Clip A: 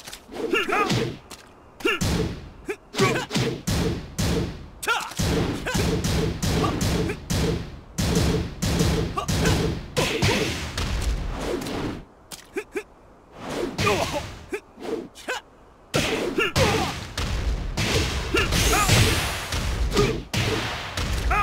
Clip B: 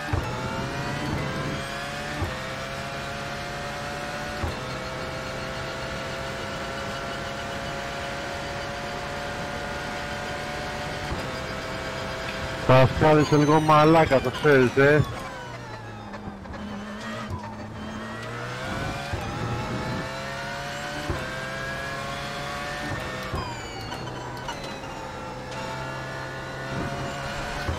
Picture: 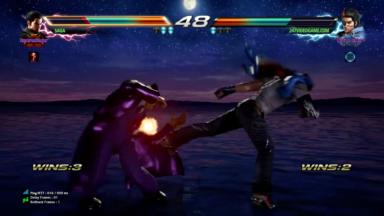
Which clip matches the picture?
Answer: A